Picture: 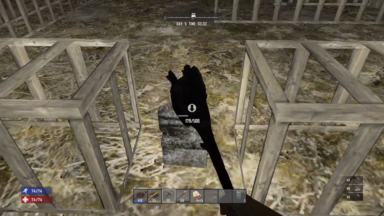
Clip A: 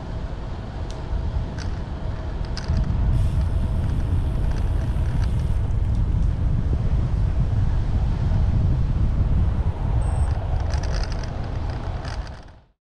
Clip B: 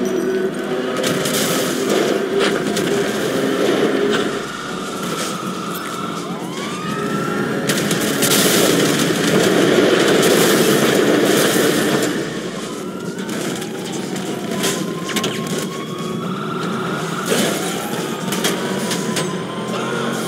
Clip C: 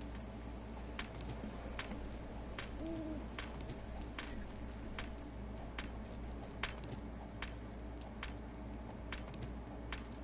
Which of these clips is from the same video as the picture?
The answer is C